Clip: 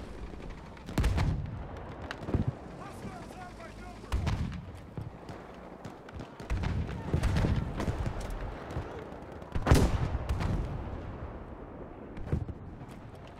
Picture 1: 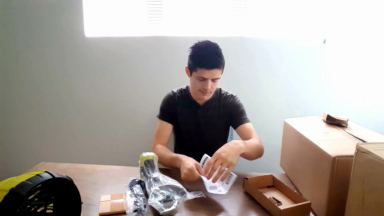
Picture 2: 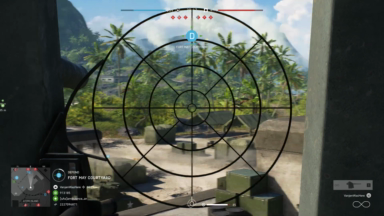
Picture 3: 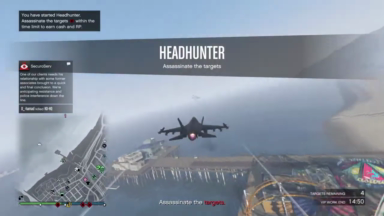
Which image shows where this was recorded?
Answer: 2